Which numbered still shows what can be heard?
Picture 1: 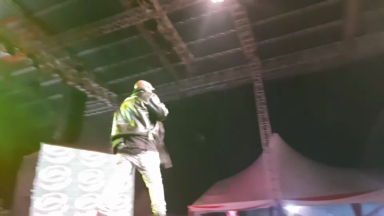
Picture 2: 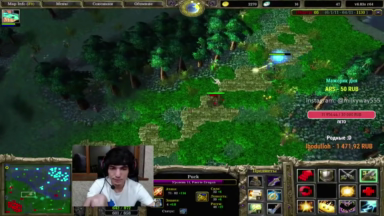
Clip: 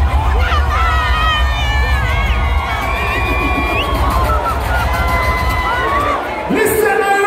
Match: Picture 1